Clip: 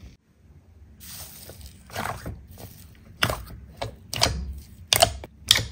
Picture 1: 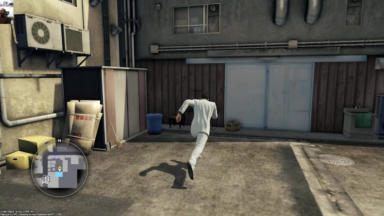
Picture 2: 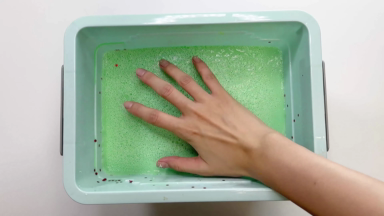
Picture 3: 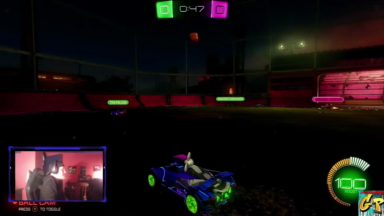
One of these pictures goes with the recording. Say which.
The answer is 2